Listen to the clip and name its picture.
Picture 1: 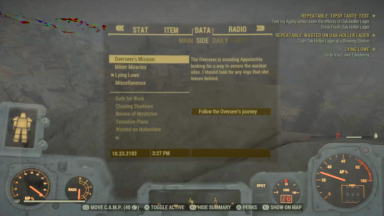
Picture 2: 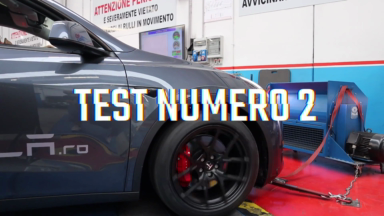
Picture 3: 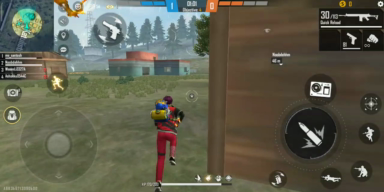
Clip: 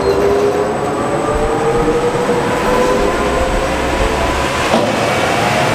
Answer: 2